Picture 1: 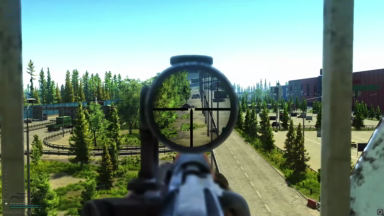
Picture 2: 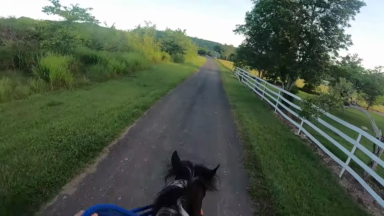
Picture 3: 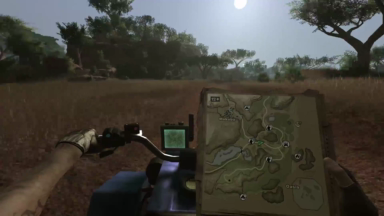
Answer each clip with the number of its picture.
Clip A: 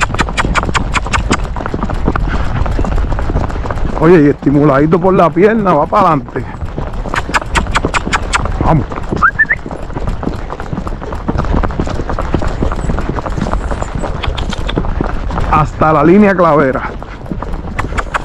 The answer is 2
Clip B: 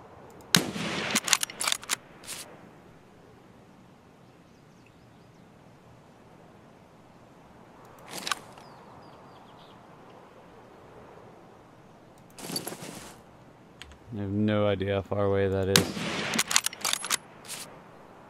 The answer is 1